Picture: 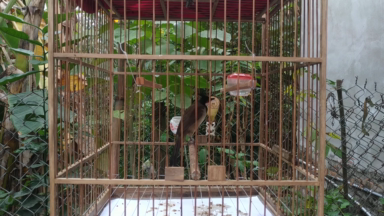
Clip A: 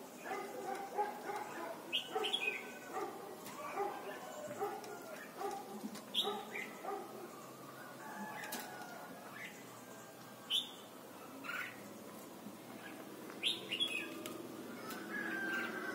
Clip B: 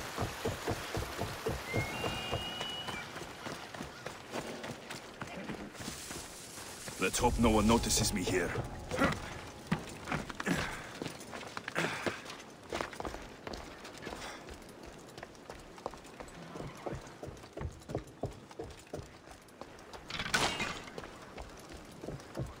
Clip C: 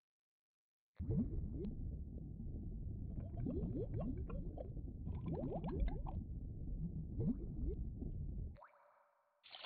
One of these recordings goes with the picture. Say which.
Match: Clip A